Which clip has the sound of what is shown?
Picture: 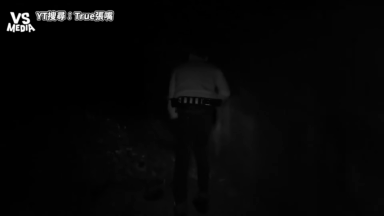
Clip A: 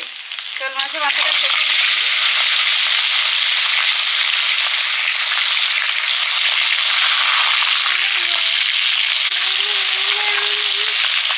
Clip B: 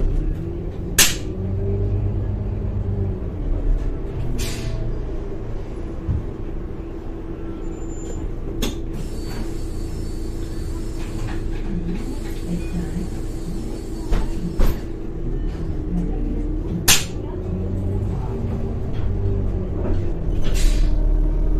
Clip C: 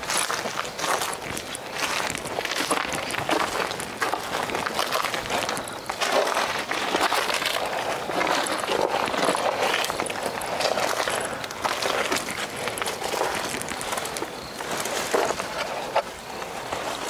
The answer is C